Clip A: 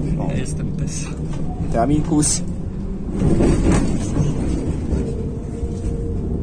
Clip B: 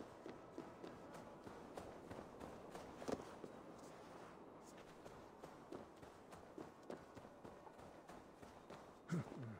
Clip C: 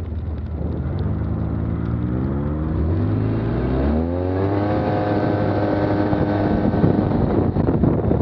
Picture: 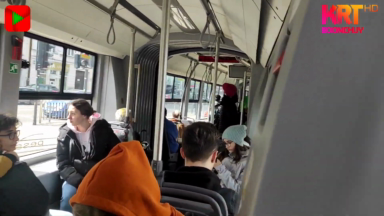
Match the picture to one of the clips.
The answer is A